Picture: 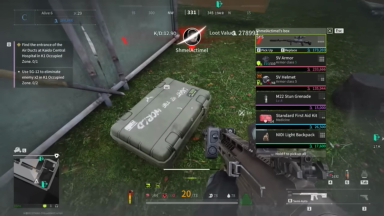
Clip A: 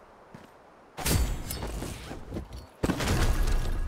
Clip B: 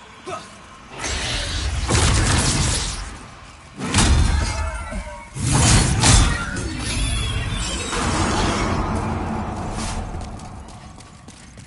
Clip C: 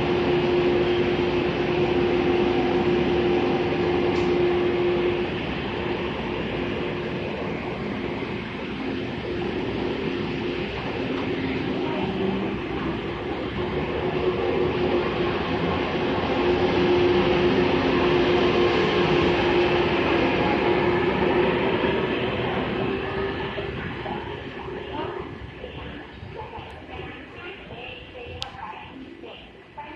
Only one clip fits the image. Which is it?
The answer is A